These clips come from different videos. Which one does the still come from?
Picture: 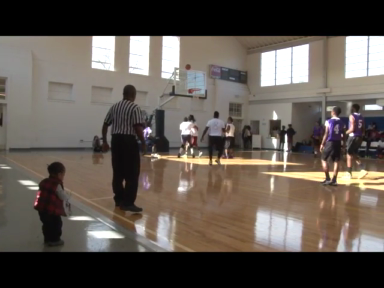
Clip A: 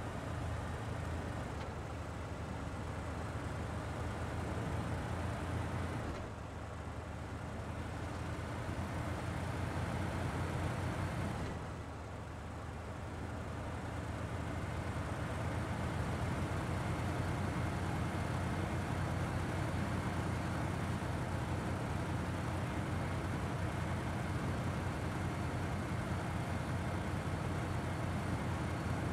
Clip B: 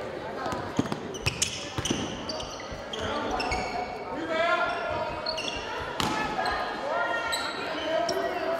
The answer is B